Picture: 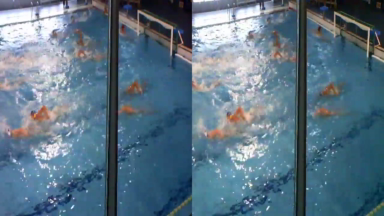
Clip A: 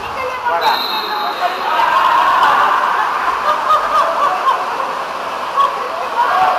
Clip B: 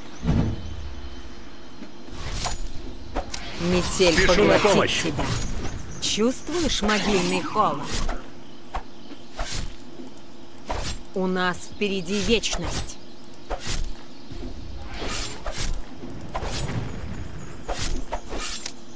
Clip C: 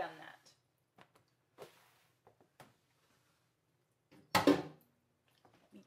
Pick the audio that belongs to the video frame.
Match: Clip A